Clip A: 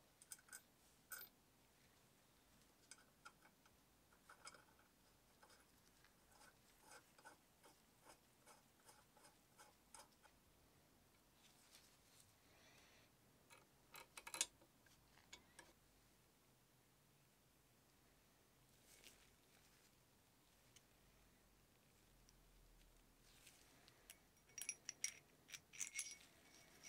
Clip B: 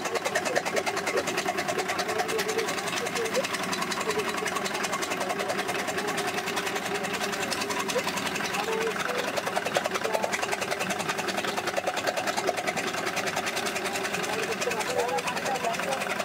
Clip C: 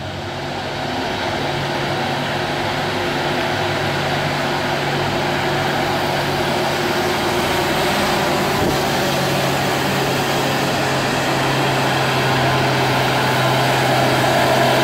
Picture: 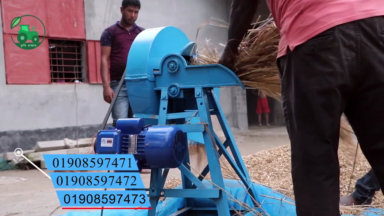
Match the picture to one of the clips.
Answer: B